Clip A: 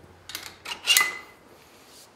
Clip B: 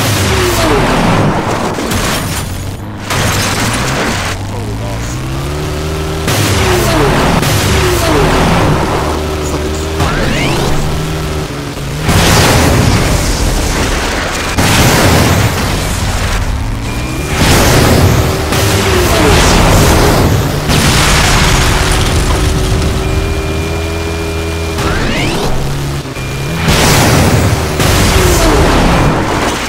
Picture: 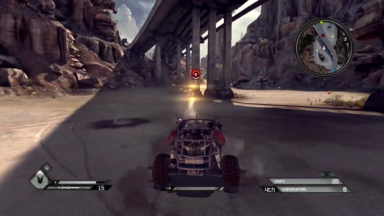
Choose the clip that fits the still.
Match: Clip B